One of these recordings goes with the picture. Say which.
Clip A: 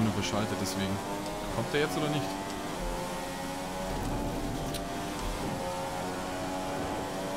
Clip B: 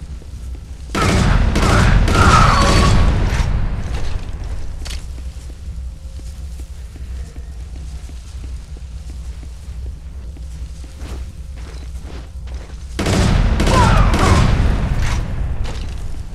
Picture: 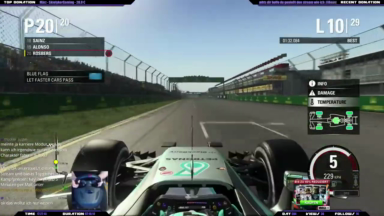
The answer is A